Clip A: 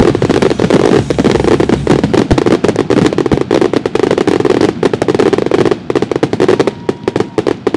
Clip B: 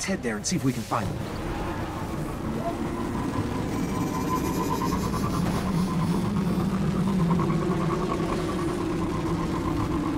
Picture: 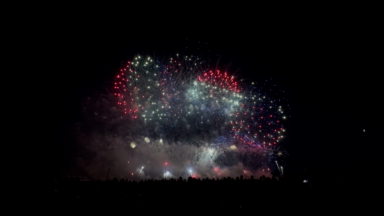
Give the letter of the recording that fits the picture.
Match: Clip A